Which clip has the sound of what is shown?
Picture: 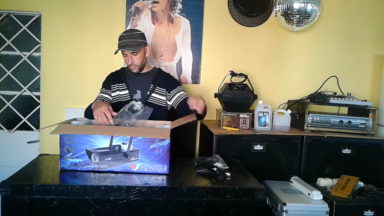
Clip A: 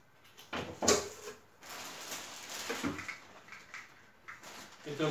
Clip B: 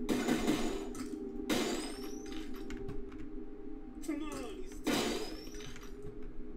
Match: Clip A